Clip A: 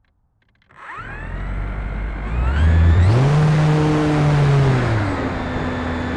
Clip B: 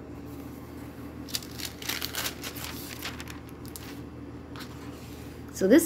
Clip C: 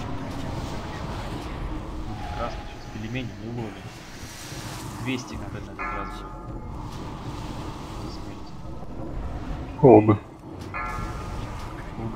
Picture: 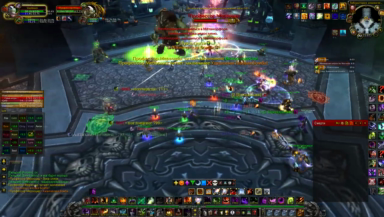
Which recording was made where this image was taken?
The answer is C